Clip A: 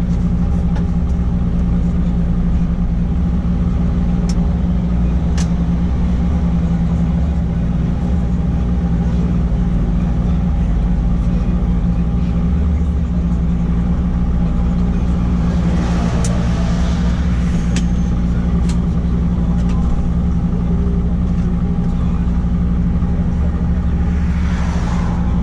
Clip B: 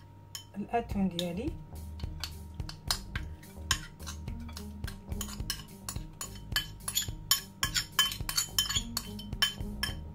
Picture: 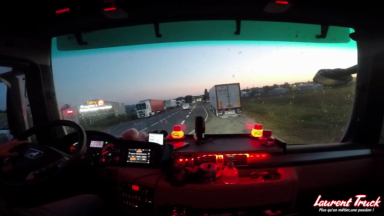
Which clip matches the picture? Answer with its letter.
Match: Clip A